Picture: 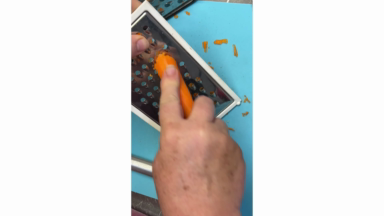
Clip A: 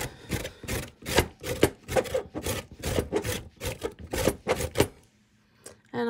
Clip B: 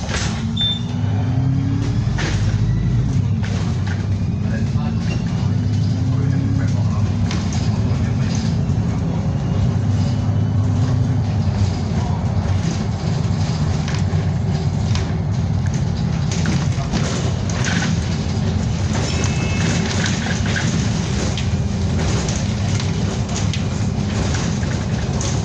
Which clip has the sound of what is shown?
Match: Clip A